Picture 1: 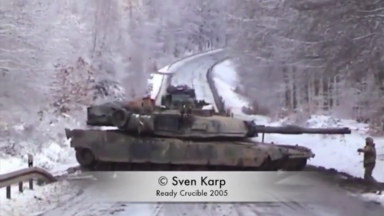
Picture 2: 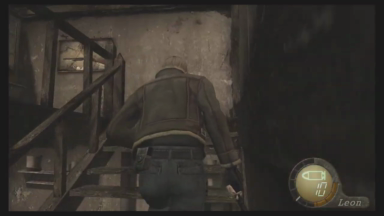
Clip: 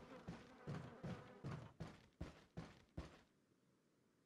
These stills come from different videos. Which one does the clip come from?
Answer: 2